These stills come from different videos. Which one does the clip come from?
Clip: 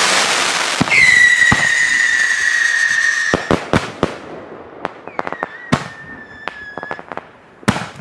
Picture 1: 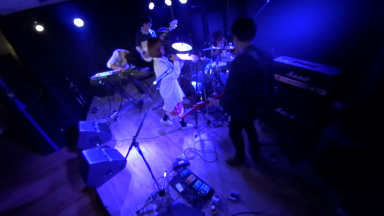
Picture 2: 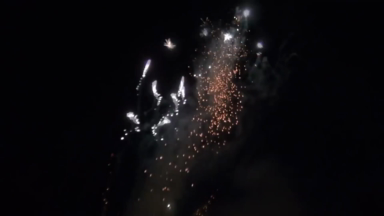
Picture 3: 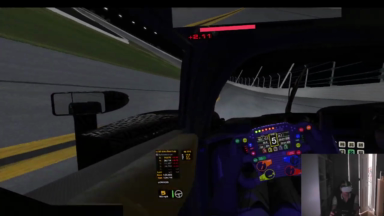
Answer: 2